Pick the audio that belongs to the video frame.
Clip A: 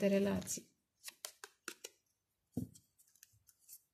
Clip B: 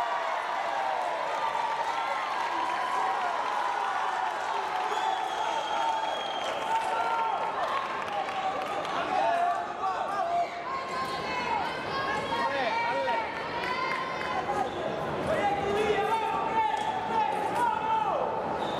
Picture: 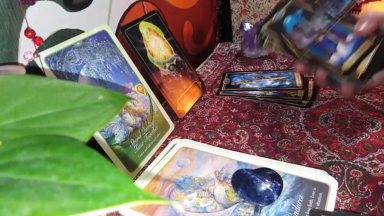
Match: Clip A